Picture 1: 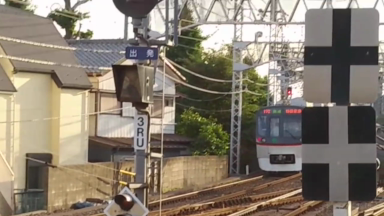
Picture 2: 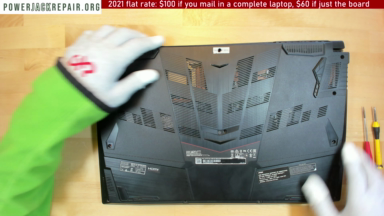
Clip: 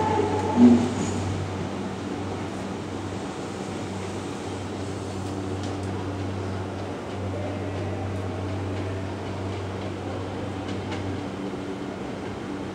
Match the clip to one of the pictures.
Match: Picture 1